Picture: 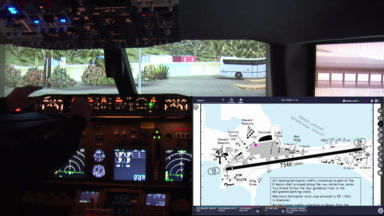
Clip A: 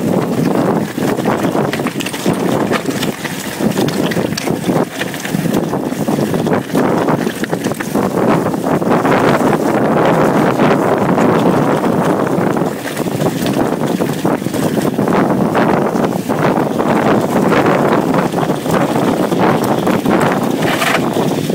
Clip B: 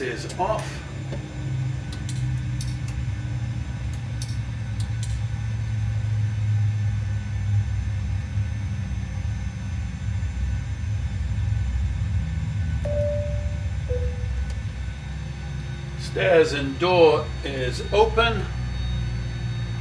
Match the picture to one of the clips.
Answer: B